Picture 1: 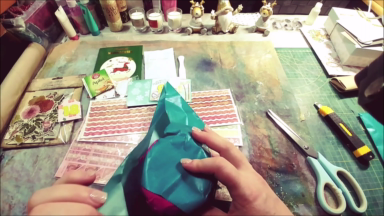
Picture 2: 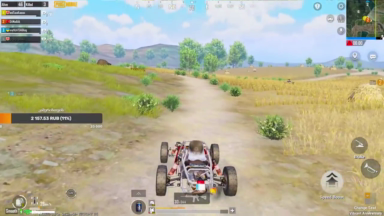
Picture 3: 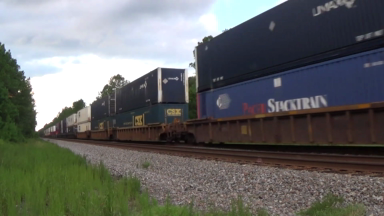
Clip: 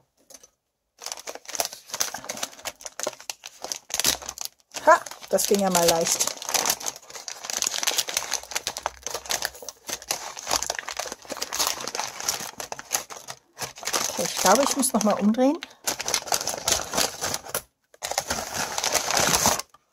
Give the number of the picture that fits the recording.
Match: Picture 1